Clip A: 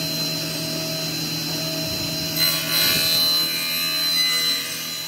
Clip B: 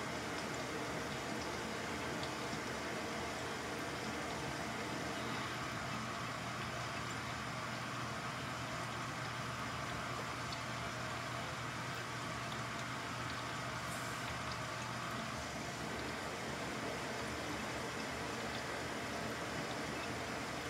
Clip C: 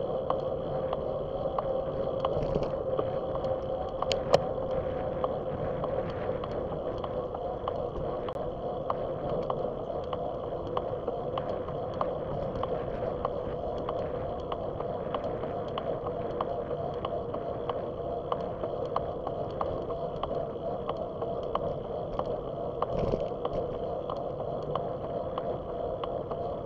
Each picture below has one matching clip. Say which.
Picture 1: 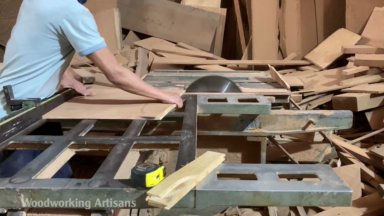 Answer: A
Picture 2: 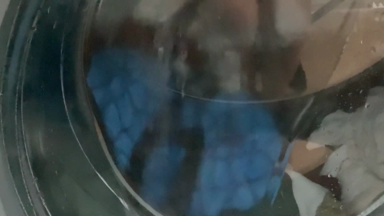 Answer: B